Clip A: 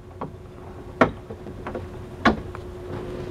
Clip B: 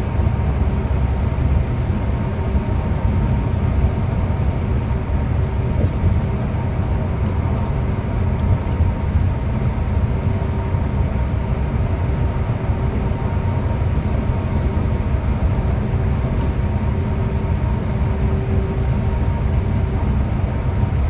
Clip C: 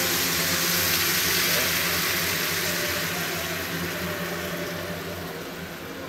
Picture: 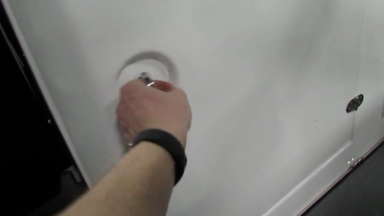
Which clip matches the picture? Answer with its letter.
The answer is A